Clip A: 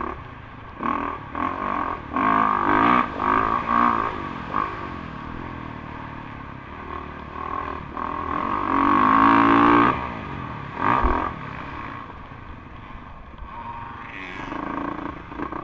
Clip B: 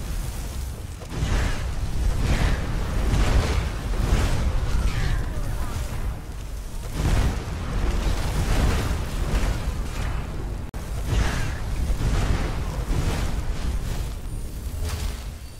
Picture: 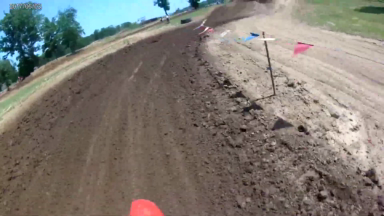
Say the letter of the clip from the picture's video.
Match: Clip A